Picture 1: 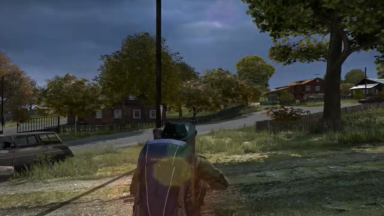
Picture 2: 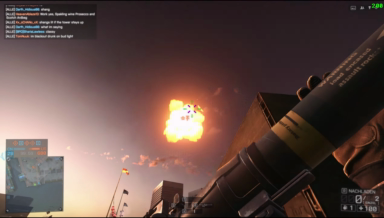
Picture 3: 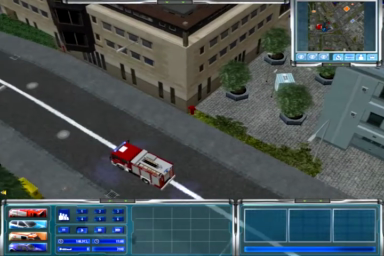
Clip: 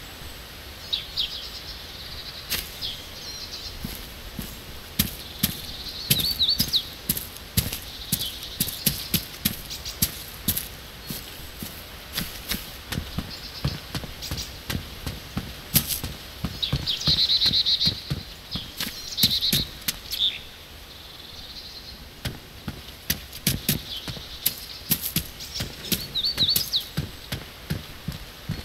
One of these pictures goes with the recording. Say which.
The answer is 1